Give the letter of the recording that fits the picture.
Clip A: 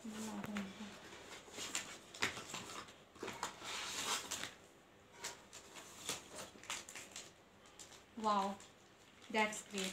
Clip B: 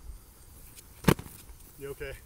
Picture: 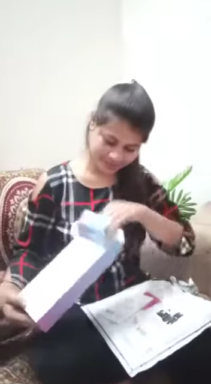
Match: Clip A